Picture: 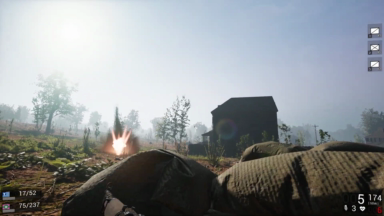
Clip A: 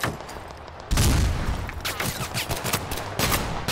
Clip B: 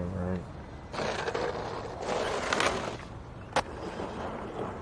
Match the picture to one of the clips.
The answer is A